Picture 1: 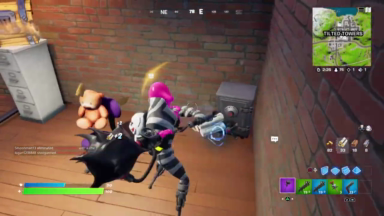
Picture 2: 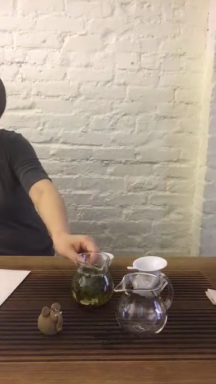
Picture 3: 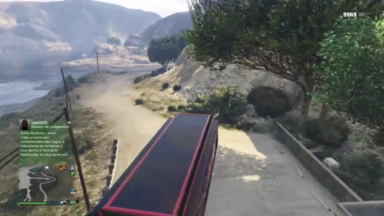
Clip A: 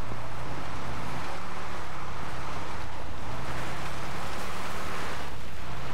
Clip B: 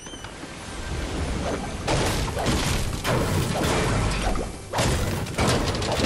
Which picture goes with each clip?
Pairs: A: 3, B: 1